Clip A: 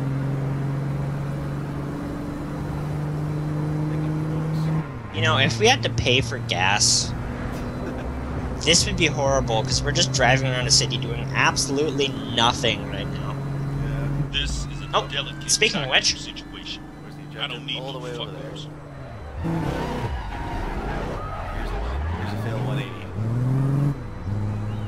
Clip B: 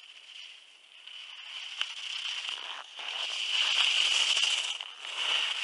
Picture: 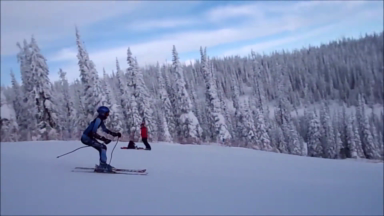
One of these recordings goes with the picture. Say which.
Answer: B